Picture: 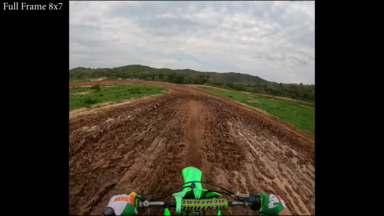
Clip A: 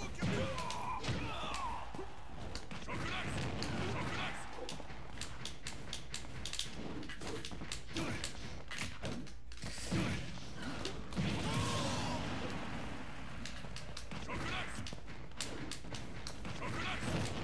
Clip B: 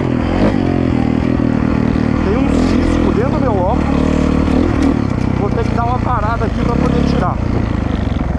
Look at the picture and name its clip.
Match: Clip B